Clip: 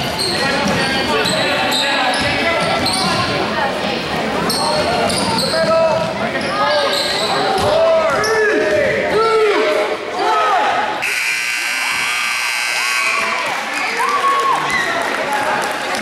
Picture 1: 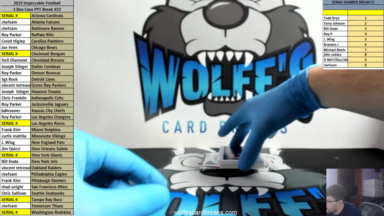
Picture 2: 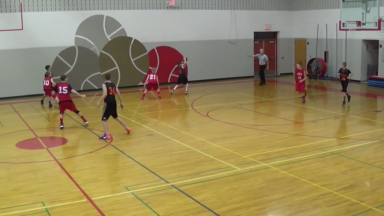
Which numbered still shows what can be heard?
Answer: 2